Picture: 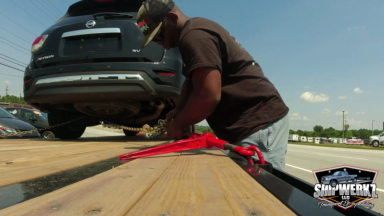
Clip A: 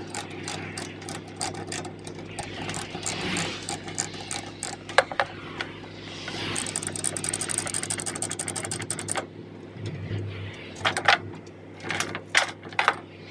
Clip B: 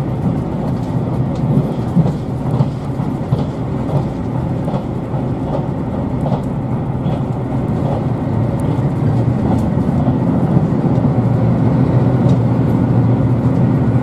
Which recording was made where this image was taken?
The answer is A